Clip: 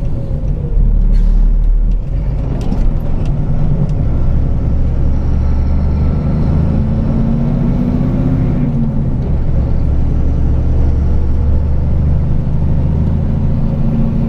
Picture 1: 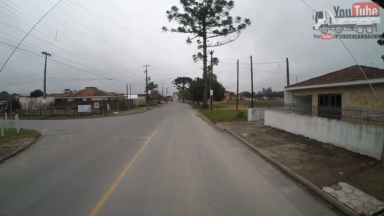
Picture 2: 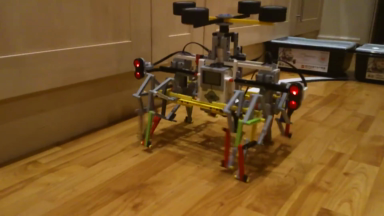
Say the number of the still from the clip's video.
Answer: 1